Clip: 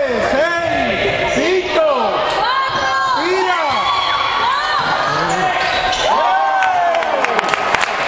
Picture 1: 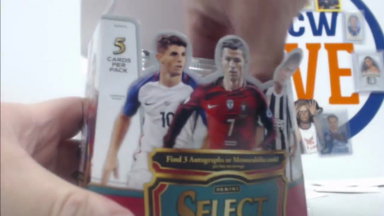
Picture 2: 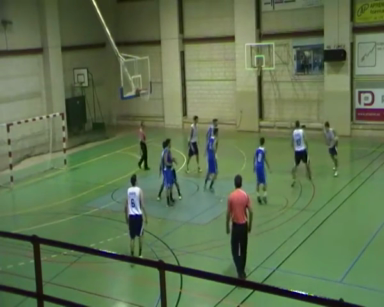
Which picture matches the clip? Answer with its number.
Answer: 2